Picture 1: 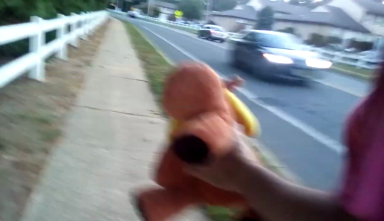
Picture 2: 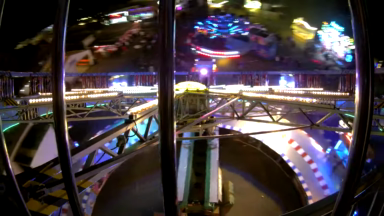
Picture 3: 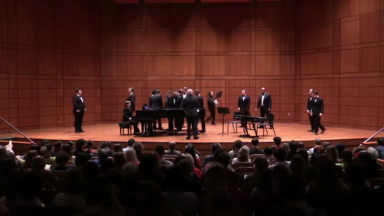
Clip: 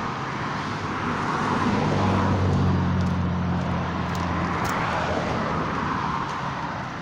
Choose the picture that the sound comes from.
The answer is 1